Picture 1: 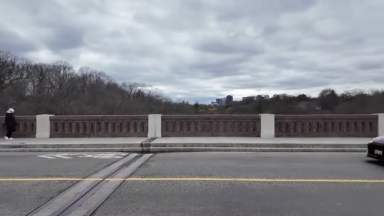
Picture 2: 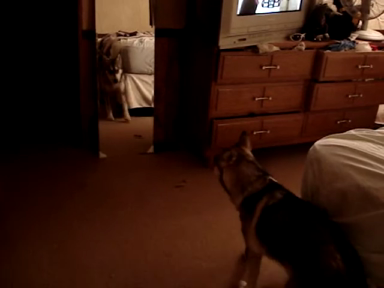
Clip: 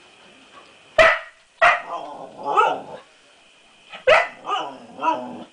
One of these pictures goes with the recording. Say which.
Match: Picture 2